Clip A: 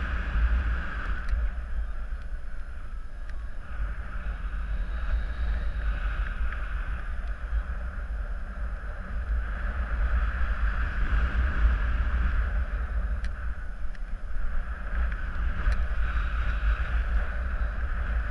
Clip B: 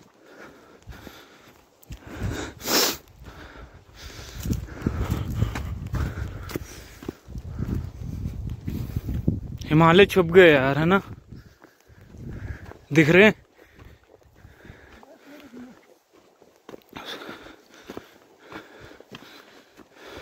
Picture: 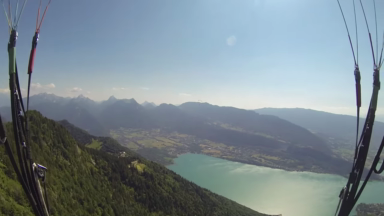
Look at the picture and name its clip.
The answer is A